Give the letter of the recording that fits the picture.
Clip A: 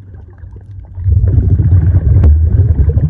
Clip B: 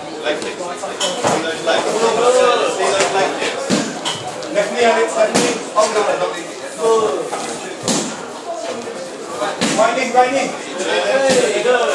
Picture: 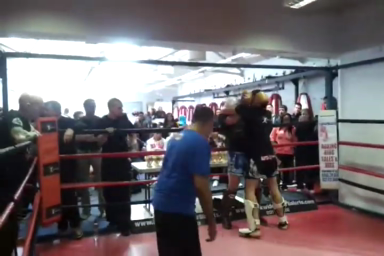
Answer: B